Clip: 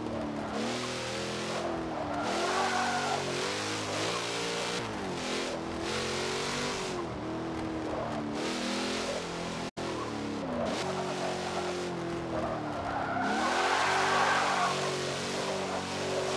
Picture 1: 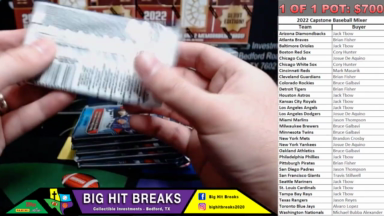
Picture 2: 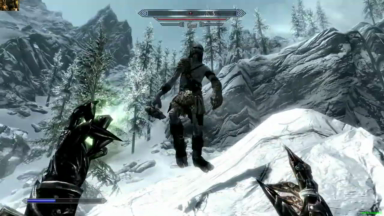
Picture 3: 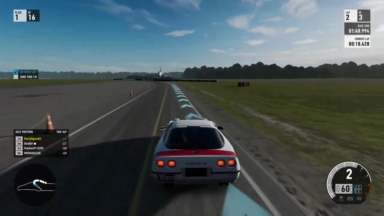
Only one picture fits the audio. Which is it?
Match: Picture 3